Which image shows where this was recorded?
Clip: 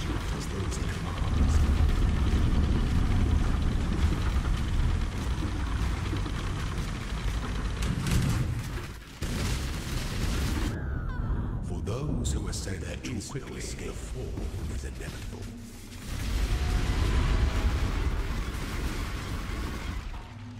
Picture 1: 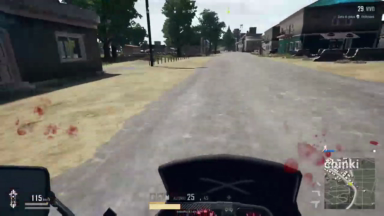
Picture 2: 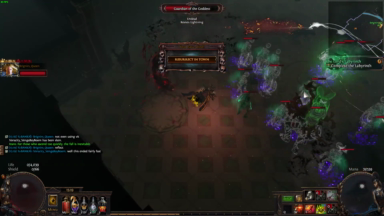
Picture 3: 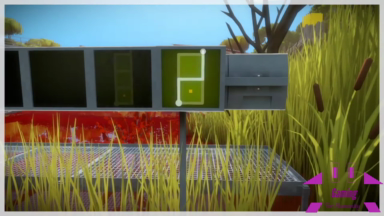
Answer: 2